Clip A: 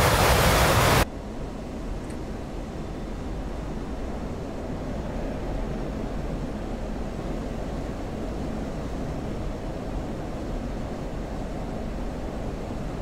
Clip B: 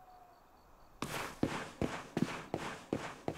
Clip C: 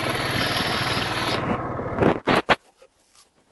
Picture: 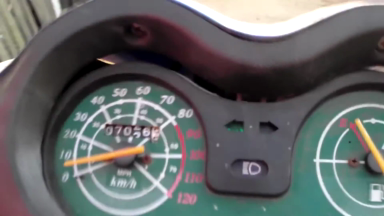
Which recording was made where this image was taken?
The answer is C